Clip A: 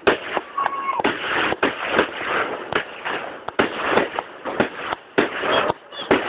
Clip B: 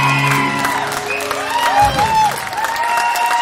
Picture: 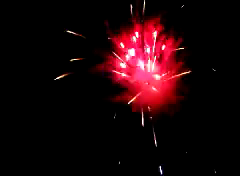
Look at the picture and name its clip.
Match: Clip A